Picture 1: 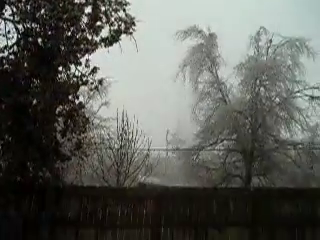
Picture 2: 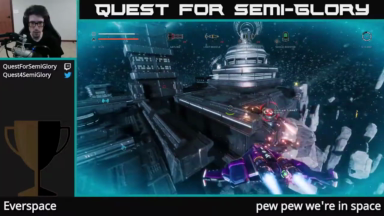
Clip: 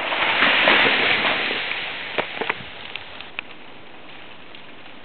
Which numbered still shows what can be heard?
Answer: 1